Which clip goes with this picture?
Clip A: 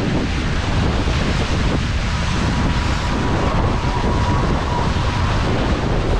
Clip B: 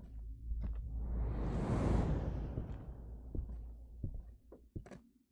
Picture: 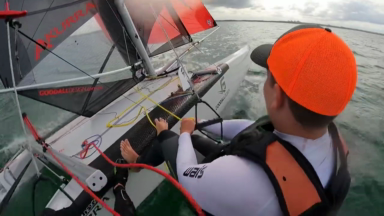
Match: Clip A